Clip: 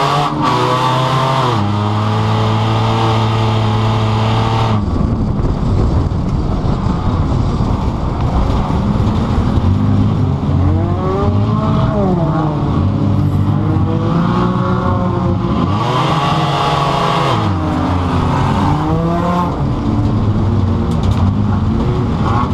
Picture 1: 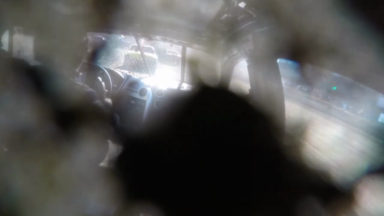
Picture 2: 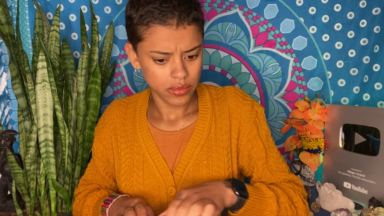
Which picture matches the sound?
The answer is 1